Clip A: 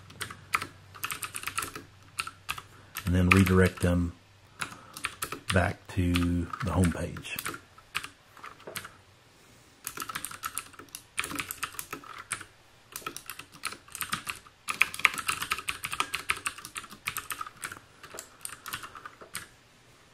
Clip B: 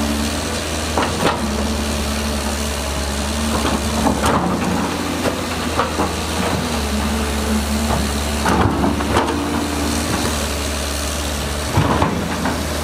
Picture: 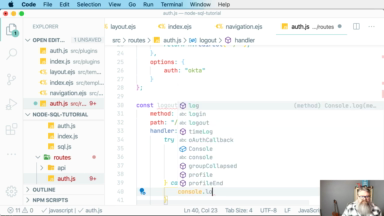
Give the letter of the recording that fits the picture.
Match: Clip A